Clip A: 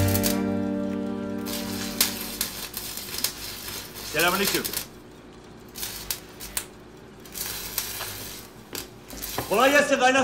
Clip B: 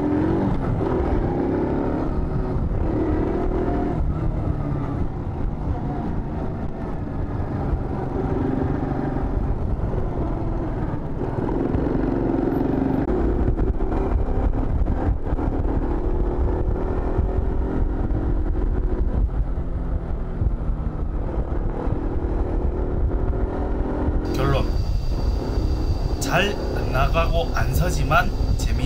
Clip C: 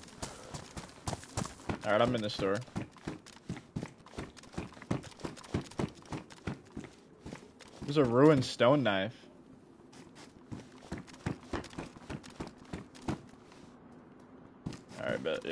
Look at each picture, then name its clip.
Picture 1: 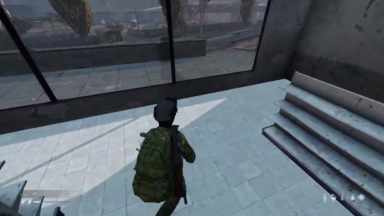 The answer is C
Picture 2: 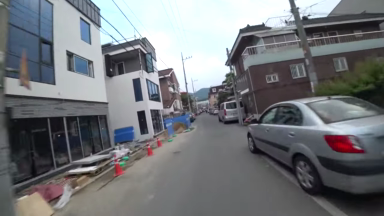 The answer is B